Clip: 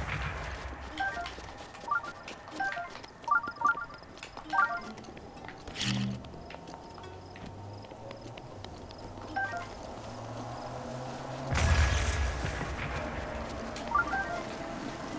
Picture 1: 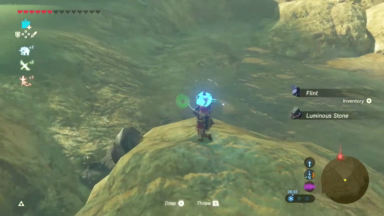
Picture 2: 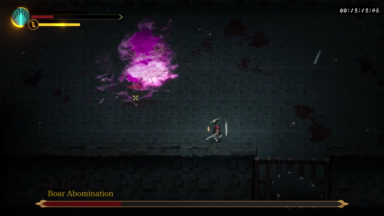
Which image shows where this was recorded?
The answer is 1